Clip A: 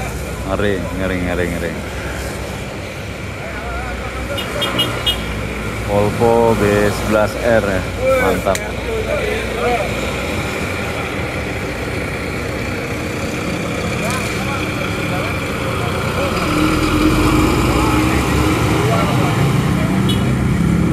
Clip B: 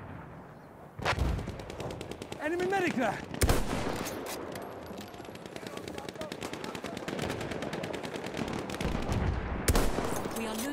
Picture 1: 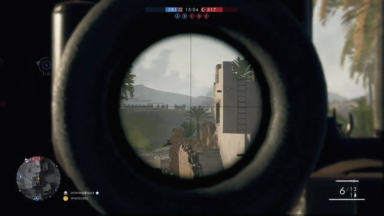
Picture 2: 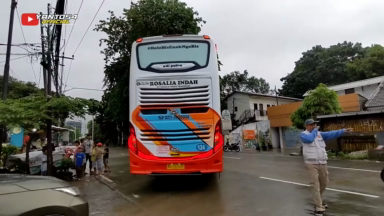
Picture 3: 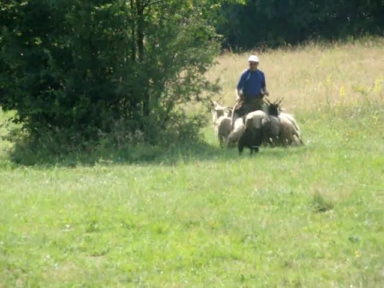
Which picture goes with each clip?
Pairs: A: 2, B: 1